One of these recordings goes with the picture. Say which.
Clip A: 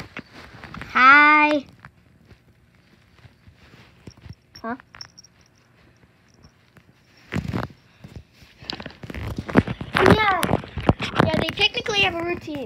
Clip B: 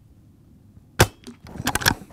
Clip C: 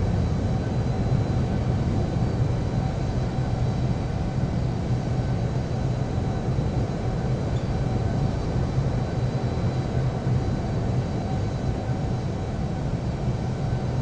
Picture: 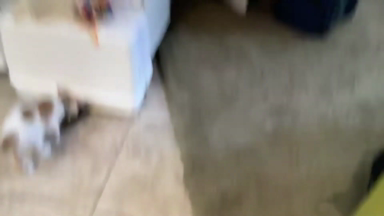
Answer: A